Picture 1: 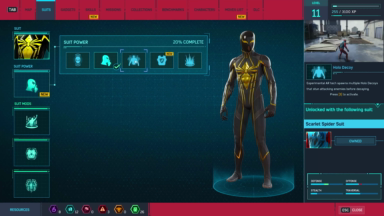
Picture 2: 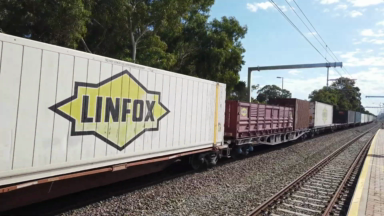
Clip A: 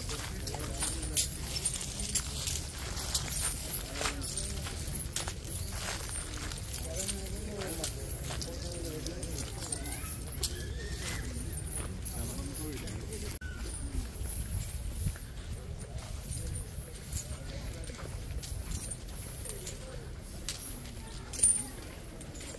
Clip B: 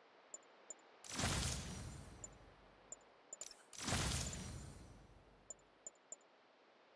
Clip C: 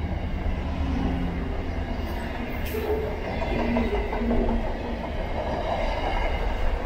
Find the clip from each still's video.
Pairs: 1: B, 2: C